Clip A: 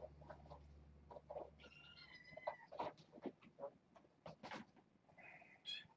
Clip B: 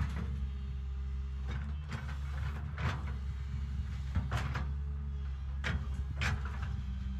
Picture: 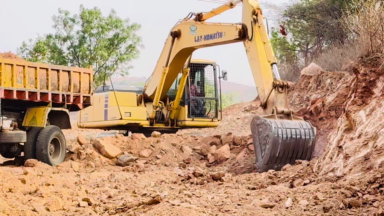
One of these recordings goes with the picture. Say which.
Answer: B